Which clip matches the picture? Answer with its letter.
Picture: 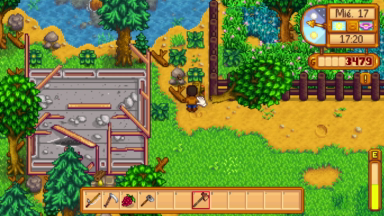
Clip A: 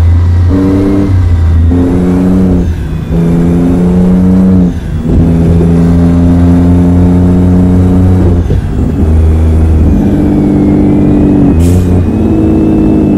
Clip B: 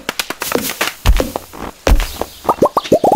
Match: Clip B